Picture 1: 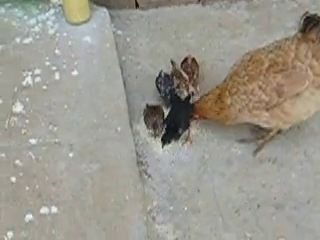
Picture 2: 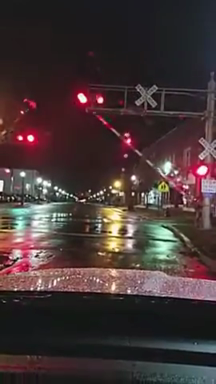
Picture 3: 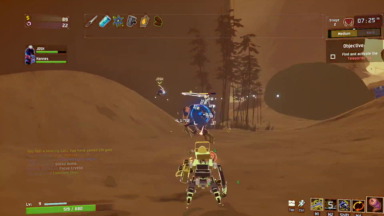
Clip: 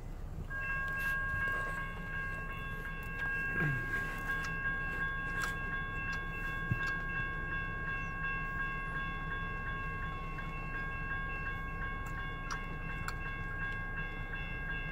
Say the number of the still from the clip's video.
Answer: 2